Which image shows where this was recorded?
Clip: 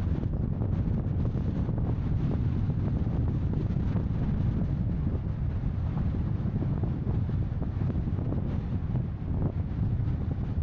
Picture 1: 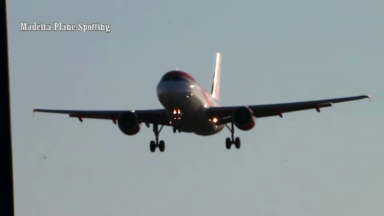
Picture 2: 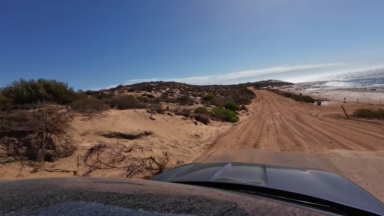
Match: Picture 2